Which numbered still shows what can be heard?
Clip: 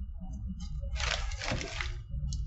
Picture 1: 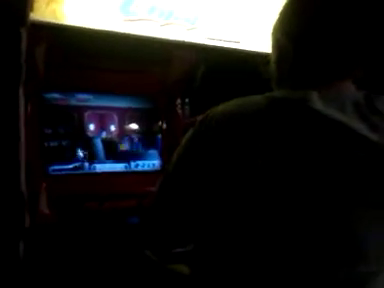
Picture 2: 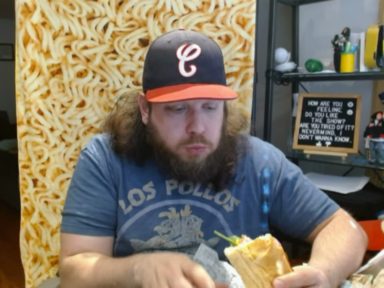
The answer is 2